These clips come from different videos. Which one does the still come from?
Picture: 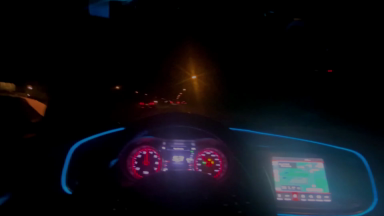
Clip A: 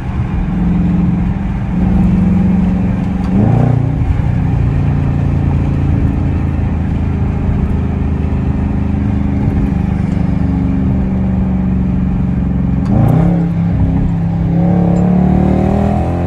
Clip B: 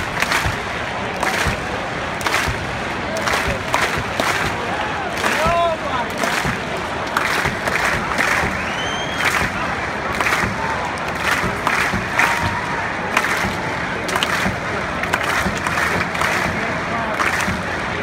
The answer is A